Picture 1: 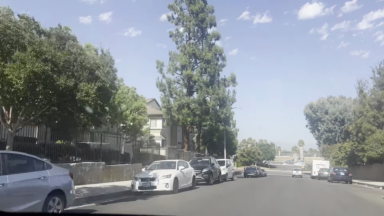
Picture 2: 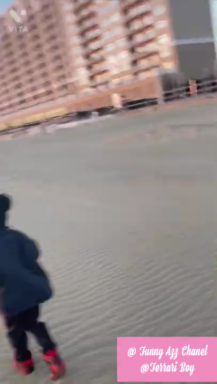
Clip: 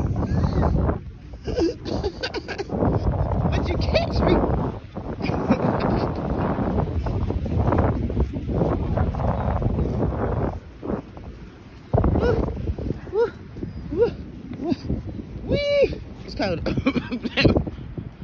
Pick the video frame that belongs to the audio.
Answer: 2